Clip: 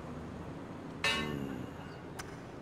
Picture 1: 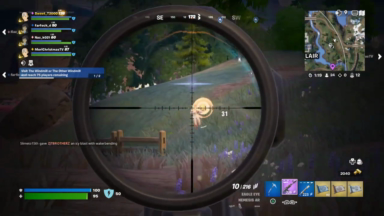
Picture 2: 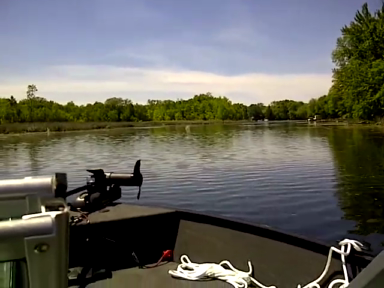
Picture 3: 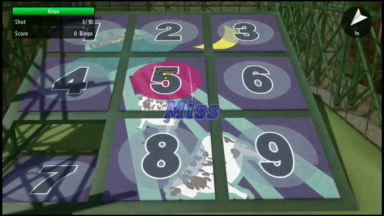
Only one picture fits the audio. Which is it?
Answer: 3